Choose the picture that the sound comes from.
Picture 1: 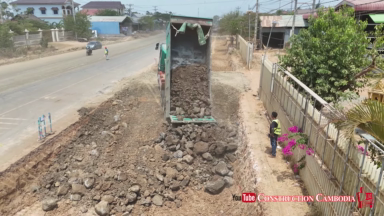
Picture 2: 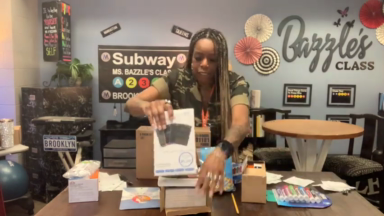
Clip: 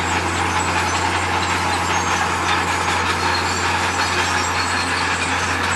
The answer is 1